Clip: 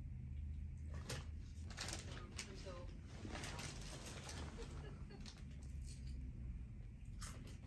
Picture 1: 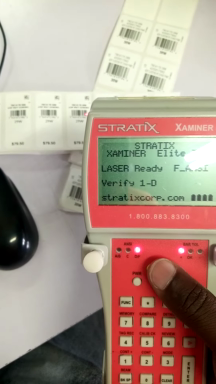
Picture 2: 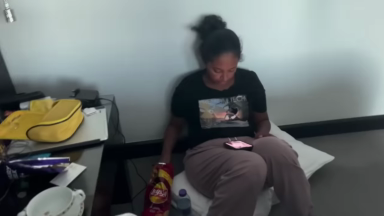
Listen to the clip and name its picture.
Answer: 2